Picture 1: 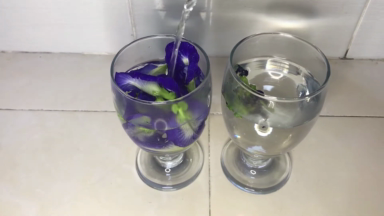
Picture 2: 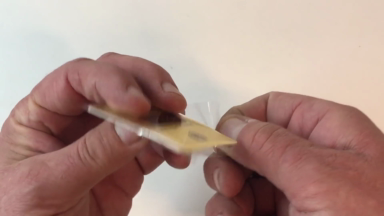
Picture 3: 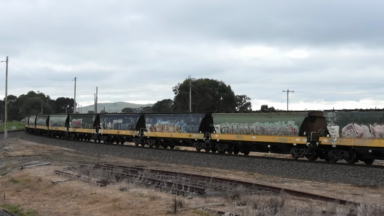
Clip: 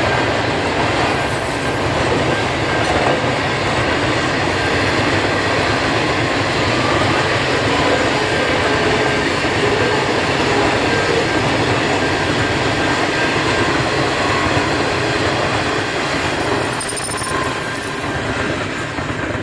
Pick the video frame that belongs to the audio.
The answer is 3